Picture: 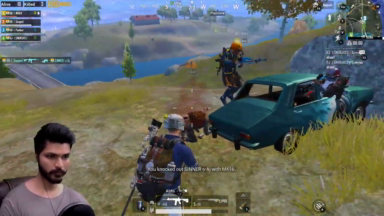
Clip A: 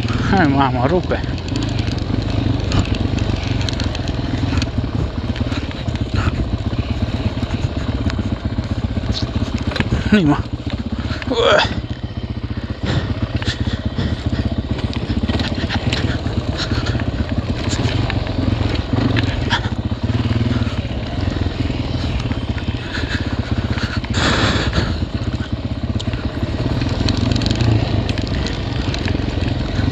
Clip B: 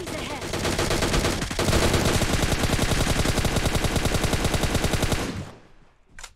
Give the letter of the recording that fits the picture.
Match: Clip B